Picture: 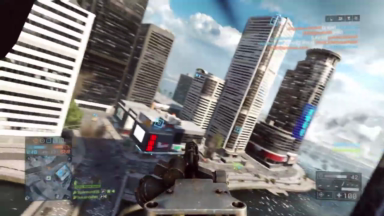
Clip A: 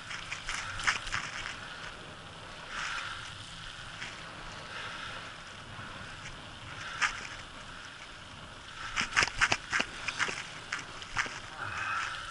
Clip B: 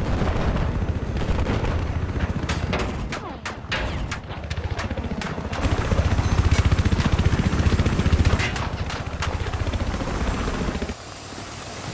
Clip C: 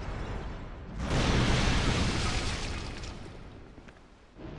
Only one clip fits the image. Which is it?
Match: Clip B